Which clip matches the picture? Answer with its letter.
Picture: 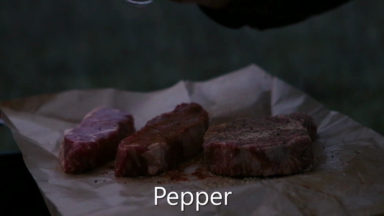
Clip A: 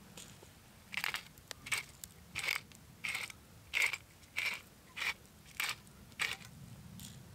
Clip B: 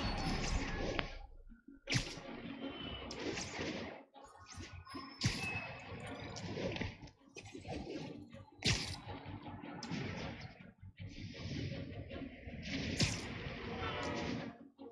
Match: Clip A